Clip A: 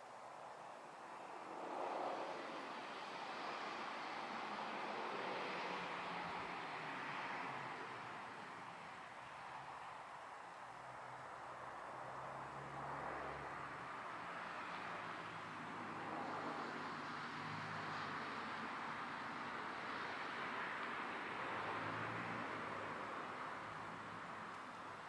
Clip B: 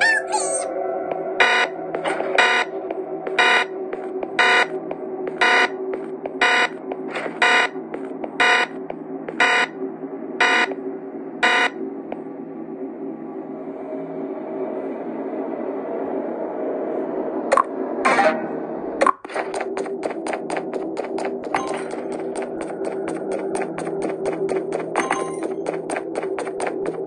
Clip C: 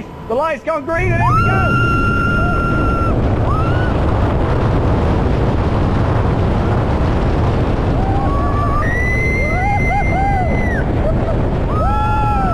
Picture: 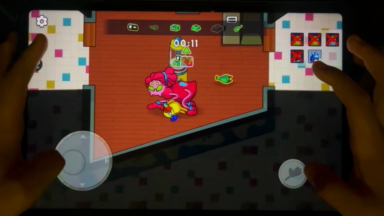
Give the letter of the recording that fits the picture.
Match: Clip B